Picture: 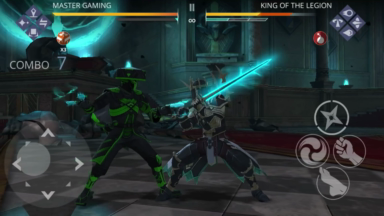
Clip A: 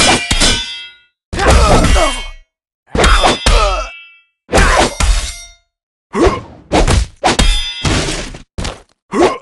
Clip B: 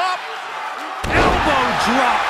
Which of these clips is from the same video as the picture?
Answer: A